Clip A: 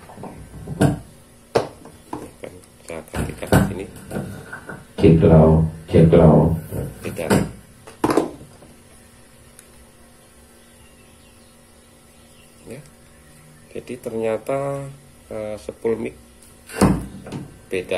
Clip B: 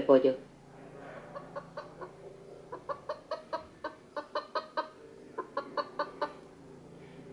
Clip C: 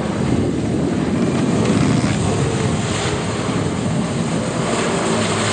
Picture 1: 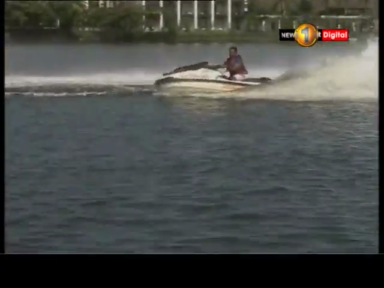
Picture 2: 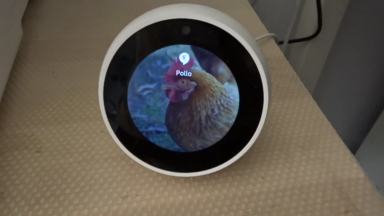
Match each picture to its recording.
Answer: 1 C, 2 B